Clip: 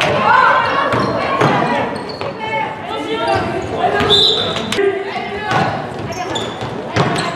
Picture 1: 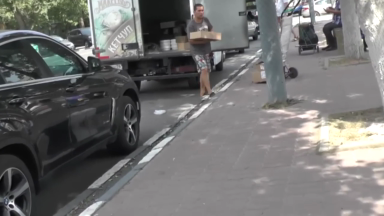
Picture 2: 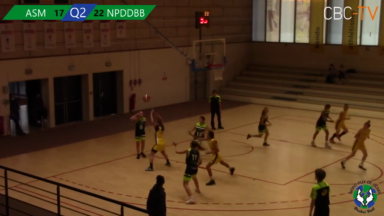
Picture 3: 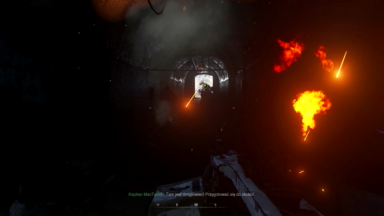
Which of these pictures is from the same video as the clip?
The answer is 2